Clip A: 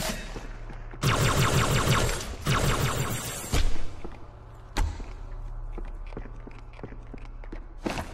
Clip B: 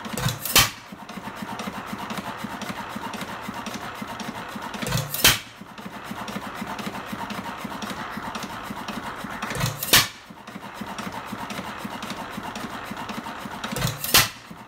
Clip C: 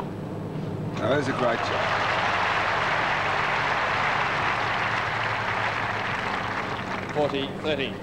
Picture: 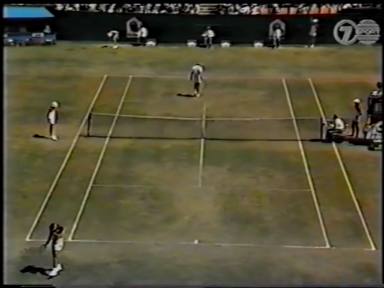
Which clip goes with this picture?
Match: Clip C